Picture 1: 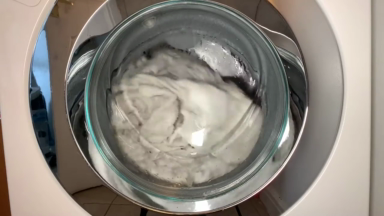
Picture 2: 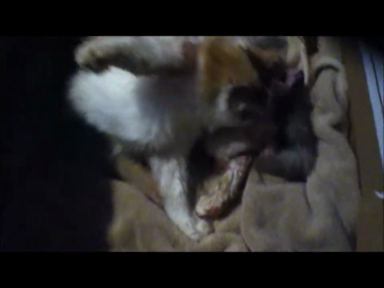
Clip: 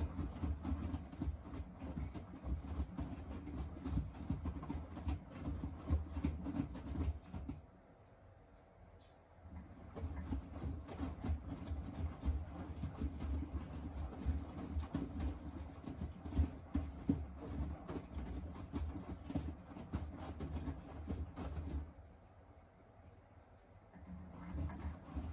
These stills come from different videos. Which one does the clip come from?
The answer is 1